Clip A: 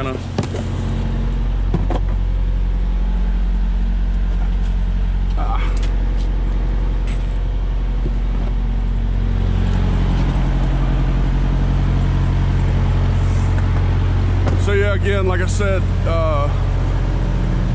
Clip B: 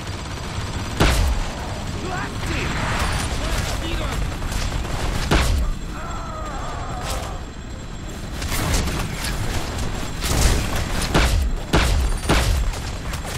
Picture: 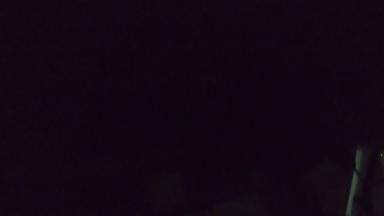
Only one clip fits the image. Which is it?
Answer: A